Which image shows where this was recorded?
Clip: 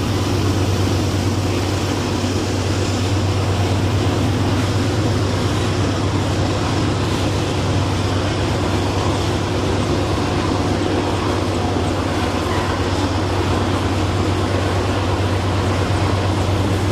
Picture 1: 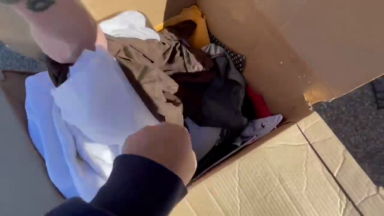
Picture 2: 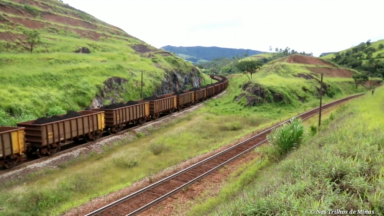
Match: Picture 2